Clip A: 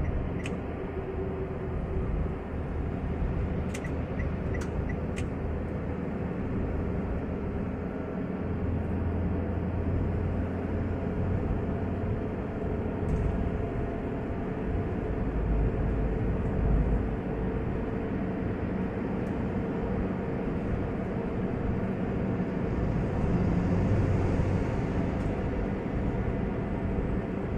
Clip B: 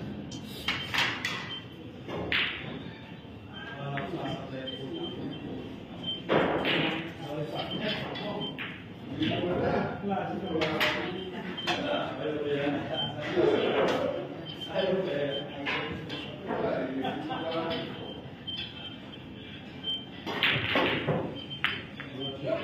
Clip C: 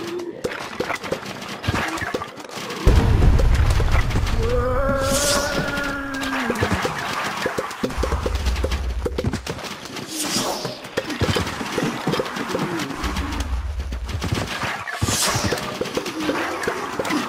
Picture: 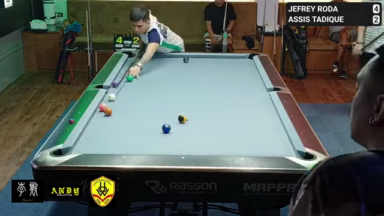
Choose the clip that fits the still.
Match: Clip B